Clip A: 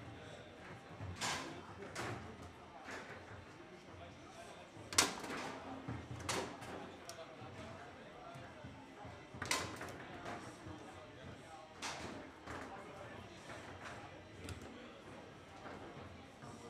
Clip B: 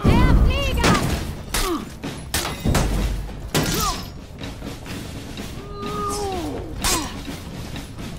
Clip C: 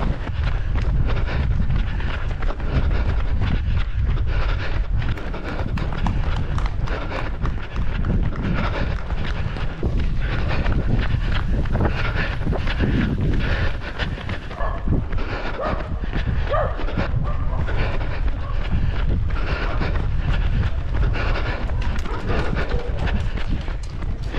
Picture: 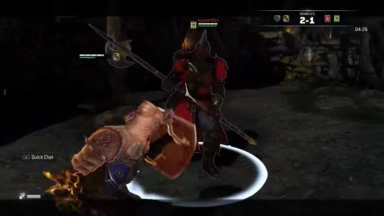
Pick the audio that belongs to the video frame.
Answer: B